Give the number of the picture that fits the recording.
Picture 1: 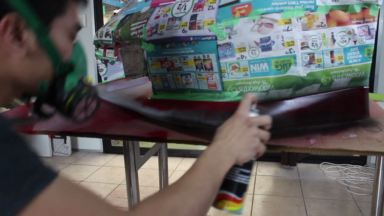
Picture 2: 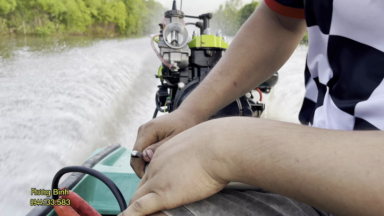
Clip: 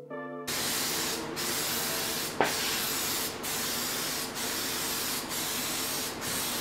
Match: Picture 1